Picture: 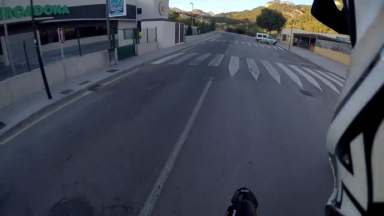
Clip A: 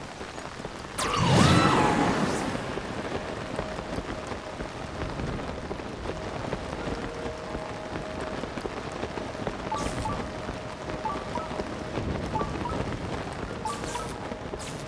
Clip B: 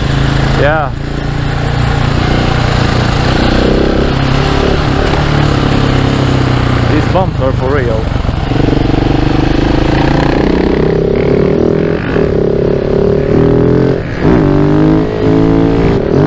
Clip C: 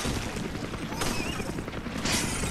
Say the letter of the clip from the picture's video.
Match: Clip B